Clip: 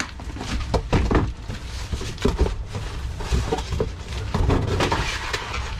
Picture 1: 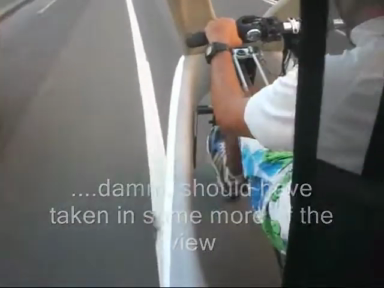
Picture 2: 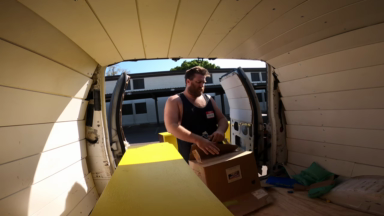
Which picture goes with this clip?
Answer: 2